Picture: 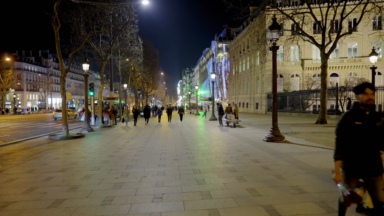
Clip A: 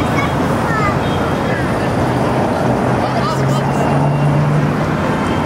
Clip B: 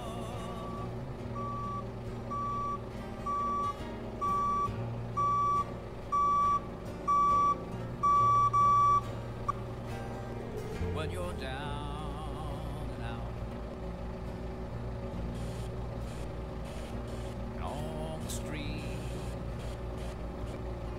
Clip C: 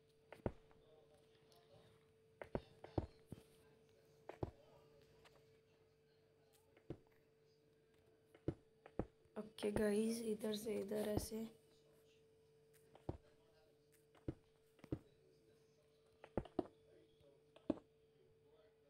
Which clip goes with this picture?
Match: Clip A